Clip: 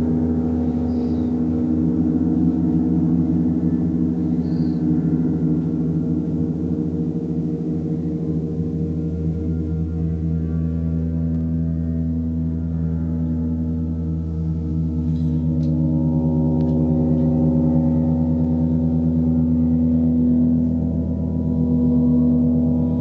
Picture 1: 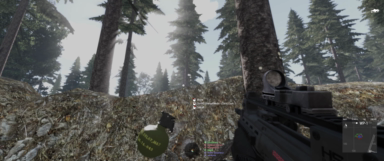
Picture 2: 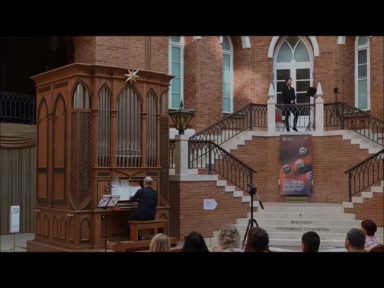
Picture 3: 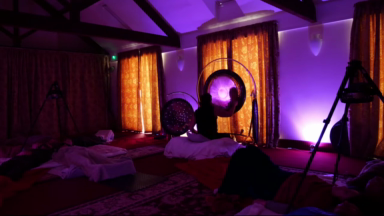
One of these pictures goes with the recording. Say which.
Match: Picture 3